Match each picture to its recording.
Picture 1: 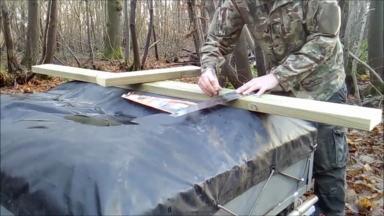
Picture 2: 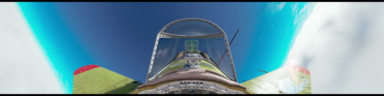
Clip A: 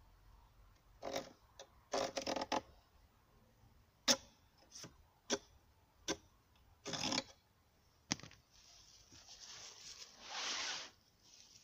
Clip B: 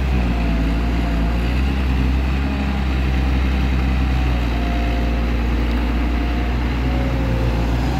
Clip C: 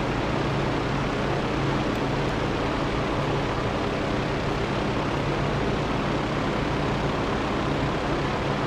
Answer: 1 A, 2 C